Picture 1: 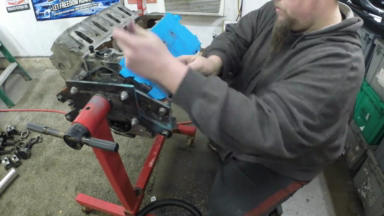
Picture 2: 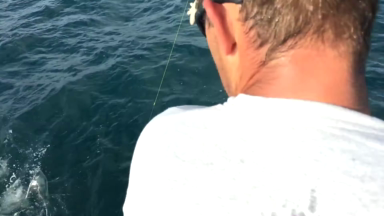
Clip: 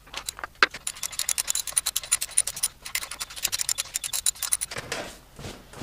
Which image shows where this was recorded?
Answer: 1